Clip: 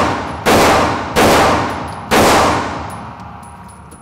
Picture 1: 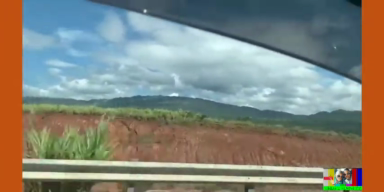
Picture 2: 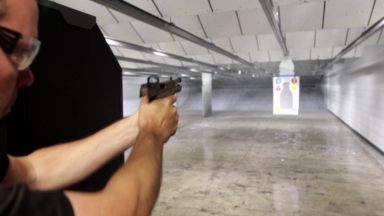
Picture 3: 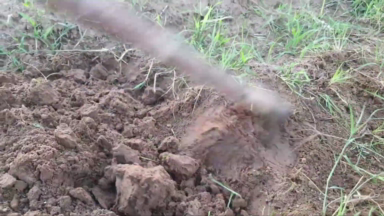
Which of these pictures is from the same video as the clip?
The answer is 2